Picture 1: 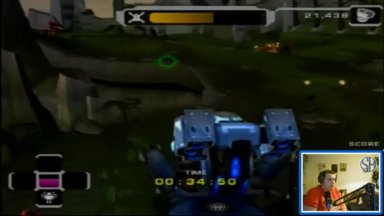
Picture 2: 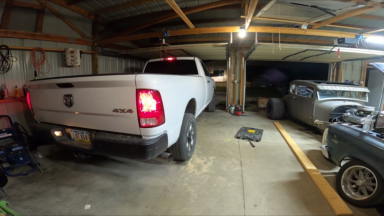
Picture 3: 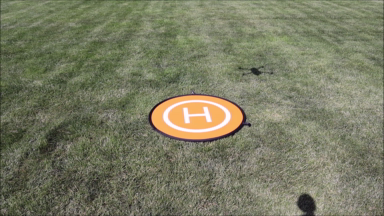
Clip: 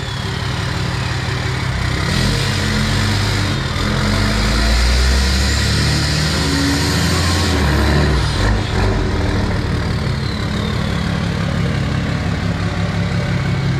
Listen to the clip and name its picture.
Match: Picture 2